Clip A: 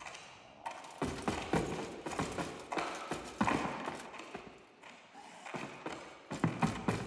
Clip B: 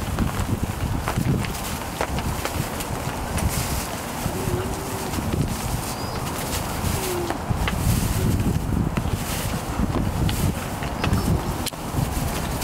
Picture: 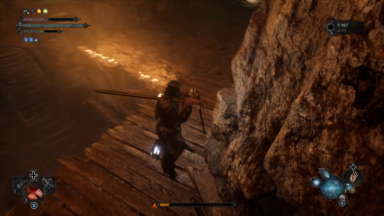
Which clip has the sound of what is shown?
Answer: A